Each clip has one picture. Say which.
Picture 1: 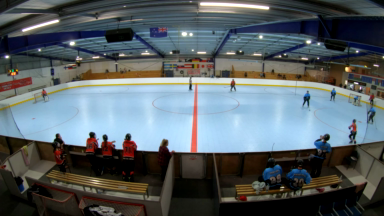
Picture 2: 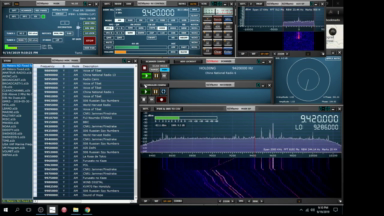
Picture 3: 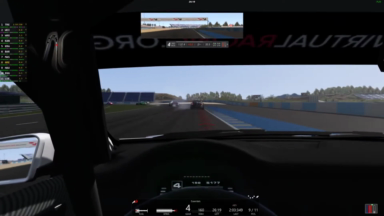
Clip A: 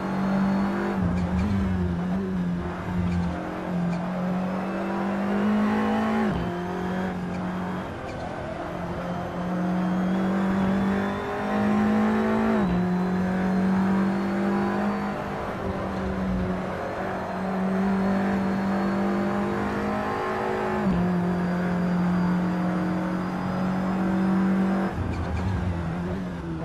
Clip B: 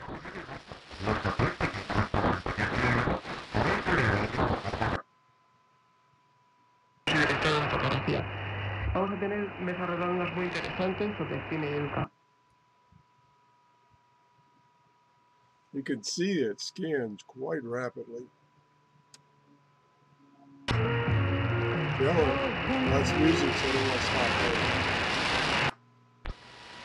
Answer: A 3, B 2